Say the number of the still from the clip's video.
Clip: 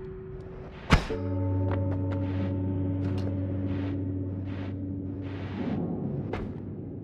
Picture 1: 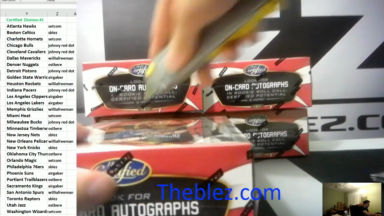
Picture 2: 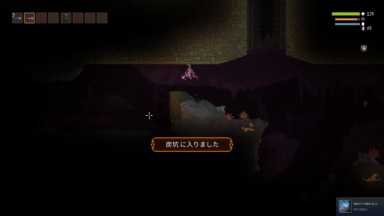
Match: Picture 2